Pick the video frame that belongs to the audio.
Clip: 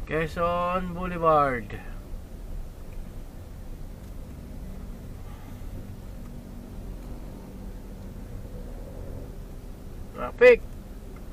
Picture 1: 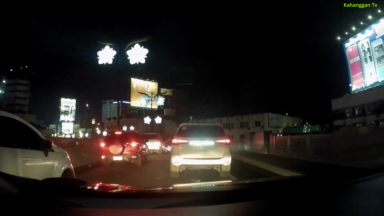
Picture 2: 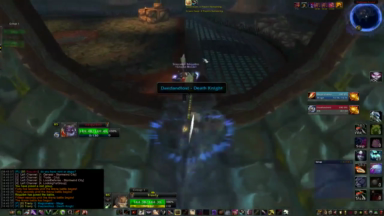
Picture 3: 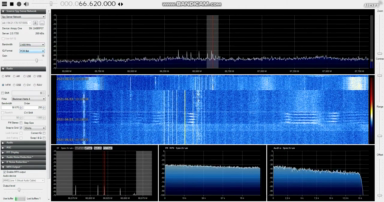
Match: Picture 1